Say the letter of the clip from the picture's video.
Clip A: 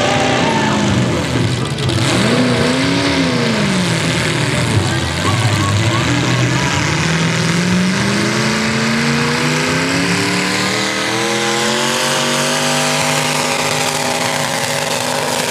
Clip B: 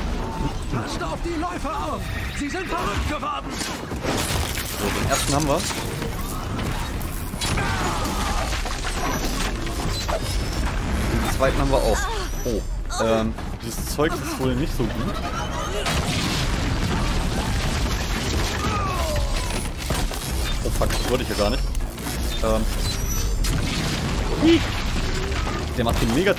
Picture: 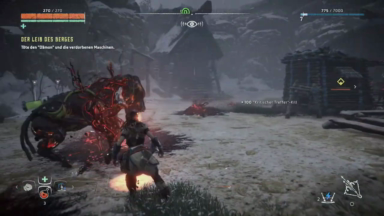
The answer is B